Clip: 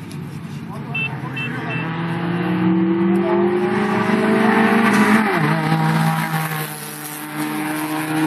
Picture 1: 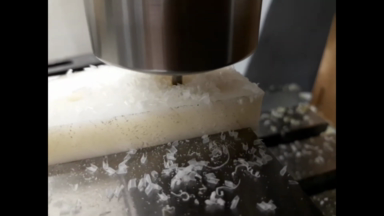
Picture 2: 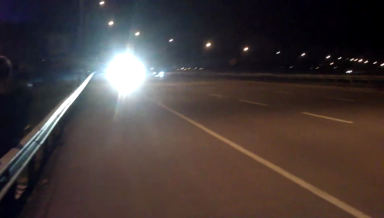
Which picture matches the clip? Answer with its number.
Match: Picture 2